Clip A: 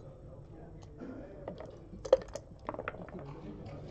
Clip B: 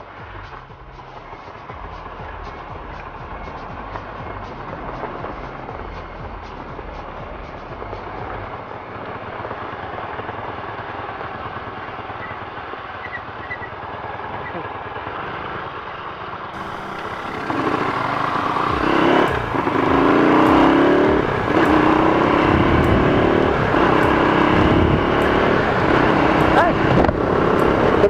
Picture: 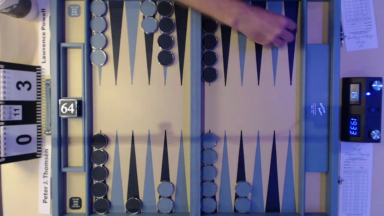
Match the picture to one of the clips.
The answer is A